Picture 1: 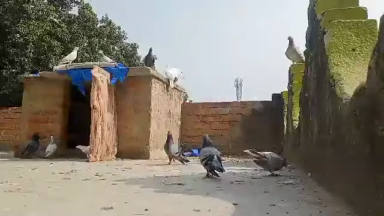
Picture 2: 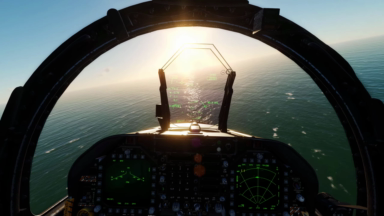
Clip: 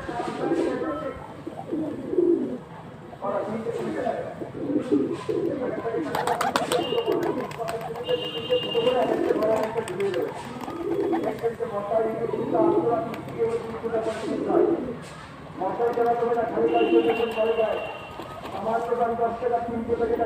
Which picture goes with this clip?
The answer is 1